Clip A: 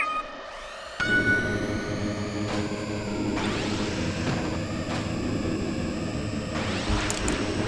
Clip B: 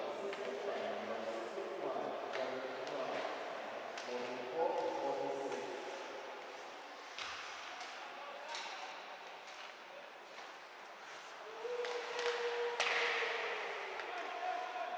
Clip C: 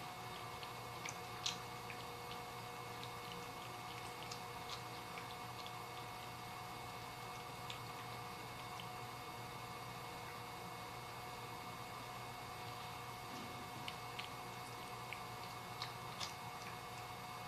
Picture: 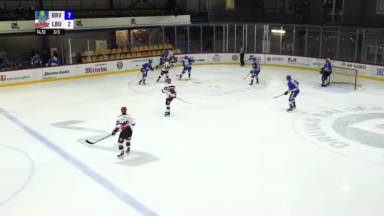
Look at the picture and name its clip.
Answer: B